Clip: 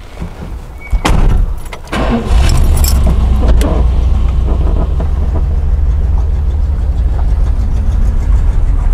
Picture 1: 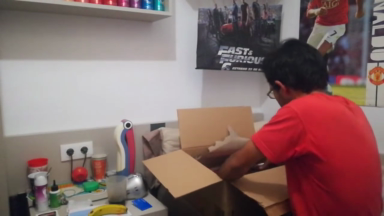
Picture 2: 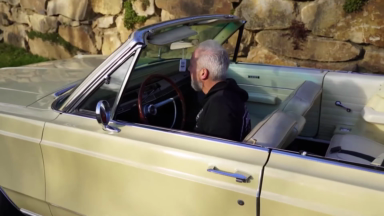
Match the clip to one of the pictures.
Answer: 2